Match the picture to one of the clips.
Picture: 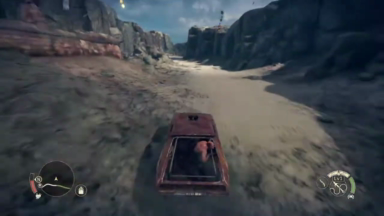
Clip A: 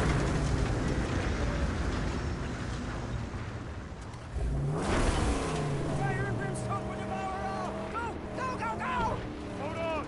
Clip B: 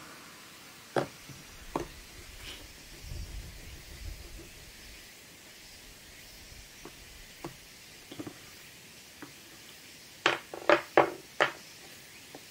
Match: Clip A